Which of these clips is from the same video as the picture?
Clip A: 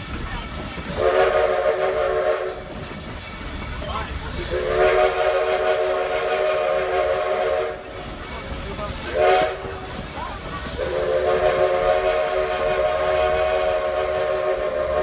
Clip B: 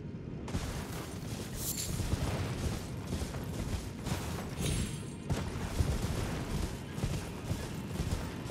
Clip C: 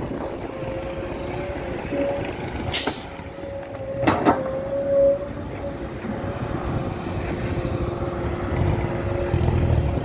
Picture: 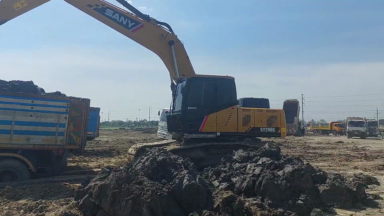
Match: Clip C